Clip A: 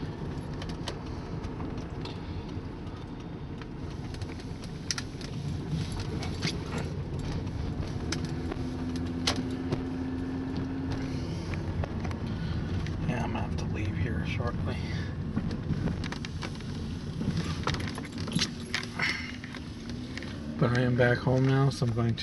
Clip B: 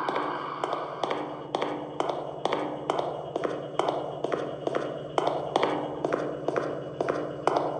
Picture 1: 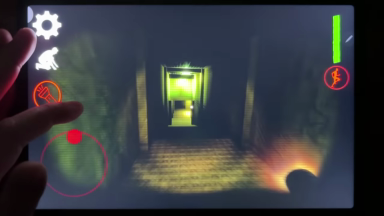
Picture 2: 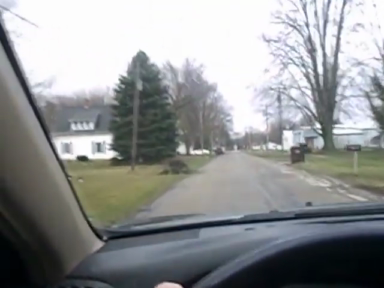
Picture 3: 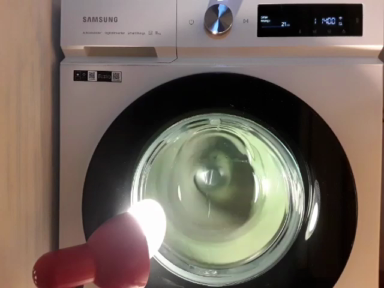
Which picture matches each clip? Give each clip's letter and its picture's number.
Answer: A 2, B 1